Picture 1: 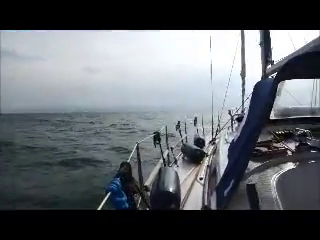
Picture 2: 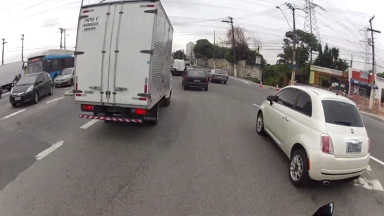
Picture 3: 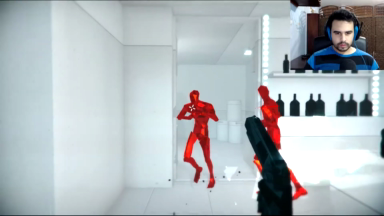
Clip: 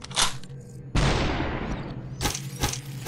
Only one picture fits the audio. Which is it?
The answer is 3